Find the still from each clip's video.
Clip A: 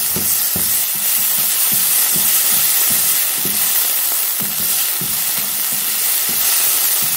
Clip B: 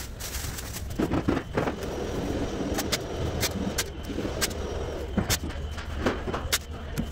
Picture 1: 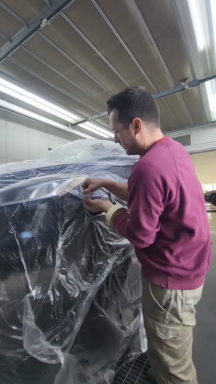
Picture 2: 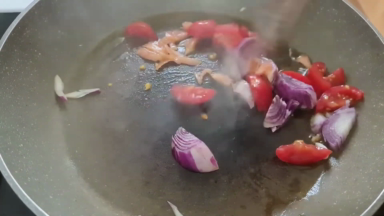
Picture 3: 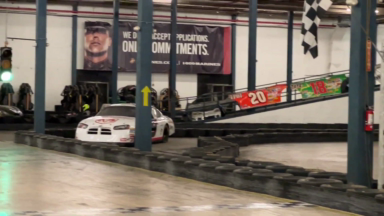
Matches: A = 2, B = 1